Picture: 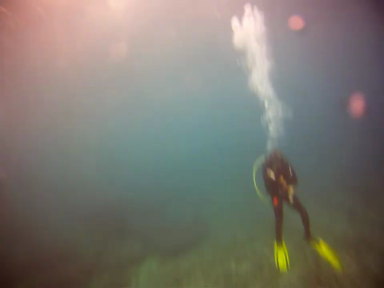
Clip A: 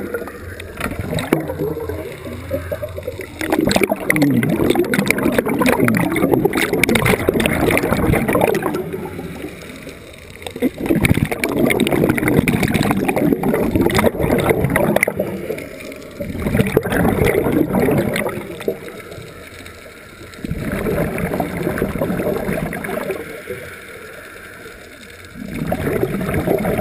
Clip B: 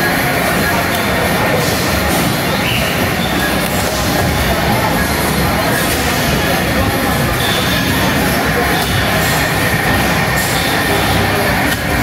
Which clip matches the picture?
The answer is A